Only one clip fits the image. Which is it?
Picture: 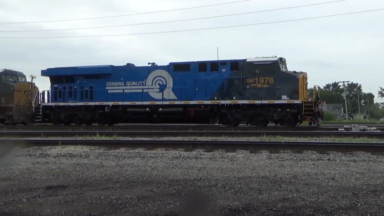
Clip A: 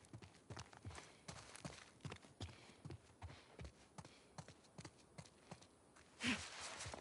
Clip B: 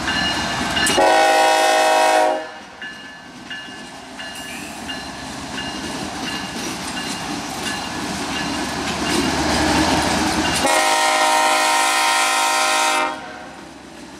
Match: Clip B